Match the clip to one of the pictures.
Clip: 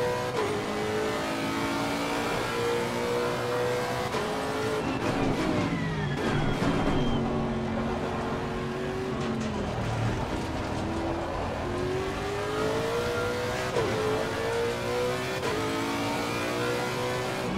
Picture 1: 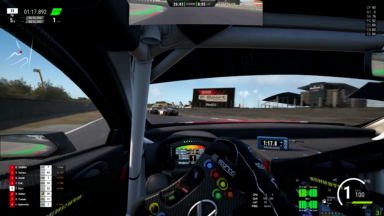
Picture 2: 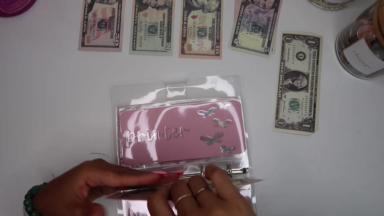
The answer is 1